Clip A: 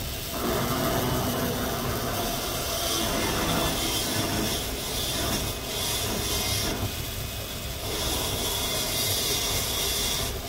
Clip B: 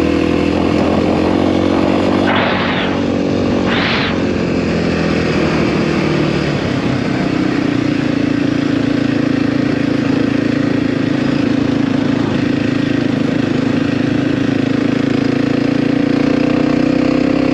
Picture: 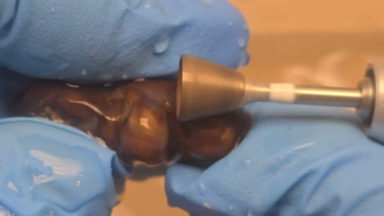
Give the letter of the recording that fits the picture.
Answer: A